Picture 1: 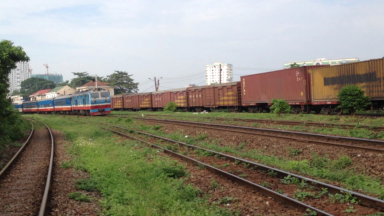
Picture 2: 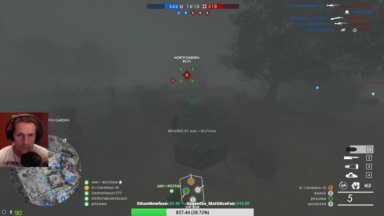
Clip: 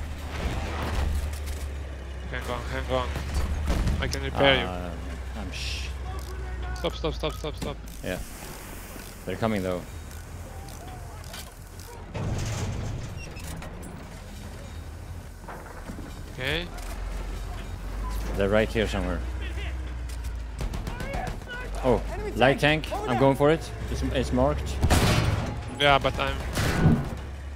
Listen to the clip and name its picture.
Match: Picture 2